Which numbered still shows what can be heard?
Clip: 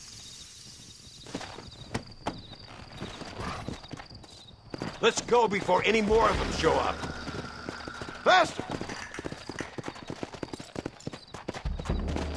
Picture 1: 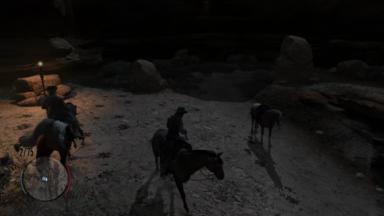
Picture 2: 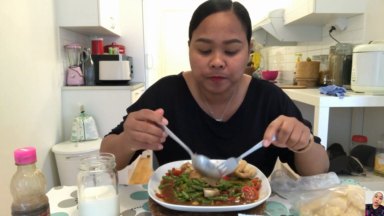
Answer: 1